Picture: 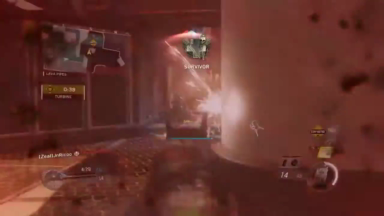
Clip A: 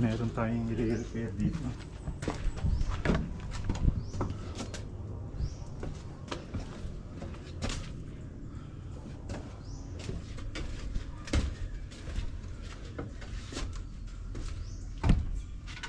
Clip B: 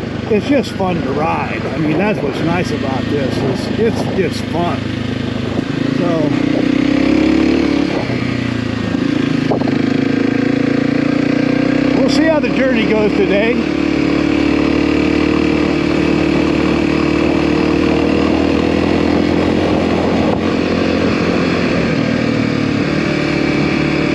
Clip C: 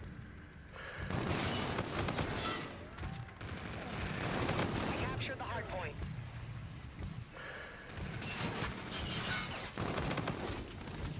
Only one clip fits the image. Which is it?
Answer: C